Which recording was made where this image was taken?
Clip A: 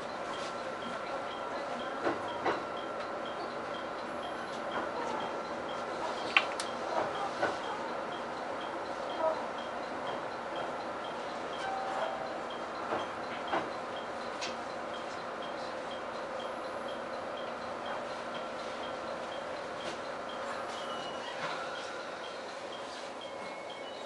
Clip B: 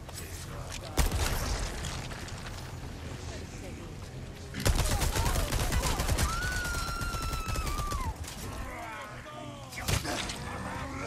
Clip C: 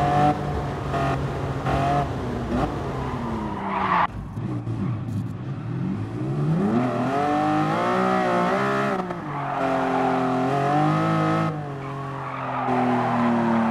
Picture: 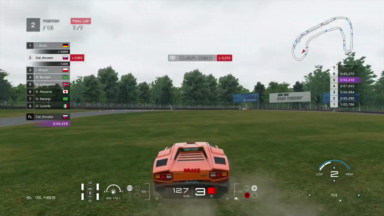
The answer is C